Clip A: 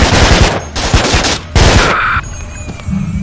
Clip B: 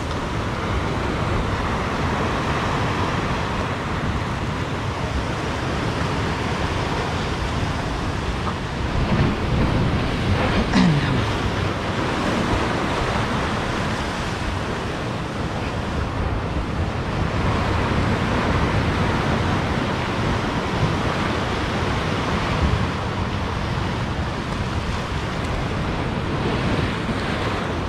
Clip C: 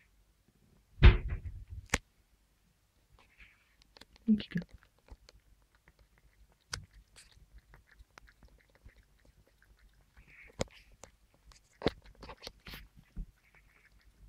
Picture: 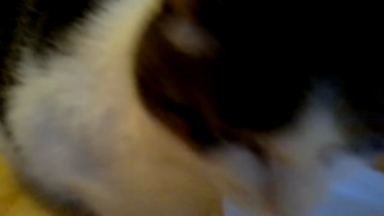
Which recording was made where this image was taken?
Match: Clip C